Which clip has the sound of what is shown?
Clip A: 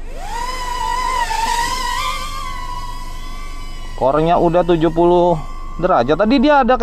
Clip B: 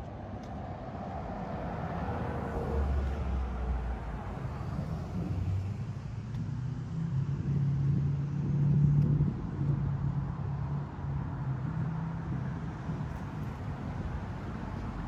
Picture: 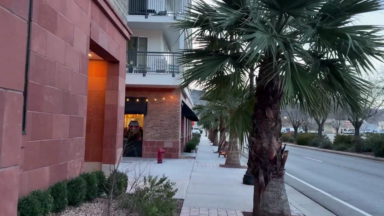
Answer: B